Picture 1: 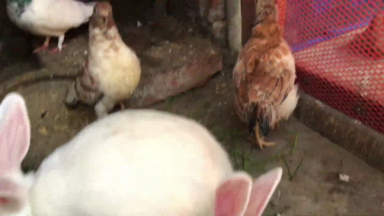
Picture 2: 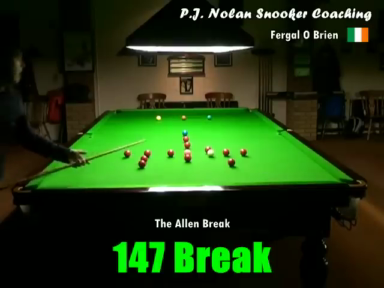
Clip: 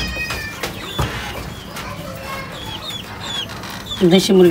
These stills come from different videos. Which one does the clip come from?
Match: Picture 1